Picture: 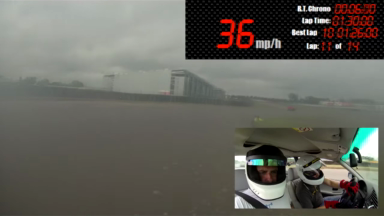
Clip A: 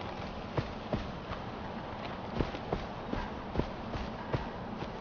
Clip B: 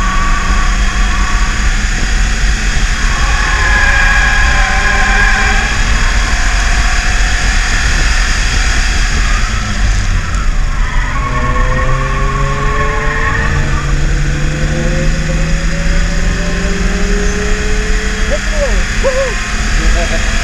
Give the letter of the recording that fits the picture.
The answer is B